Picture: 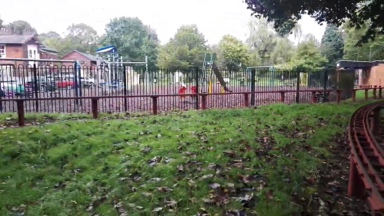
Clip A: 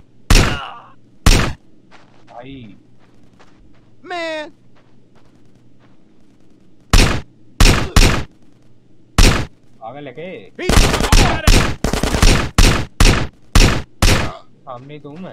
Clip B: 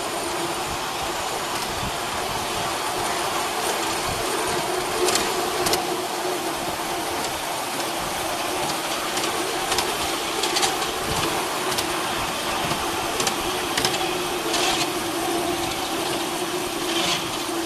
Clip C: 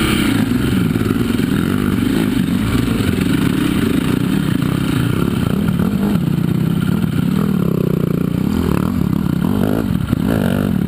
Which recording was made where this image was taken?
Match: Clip B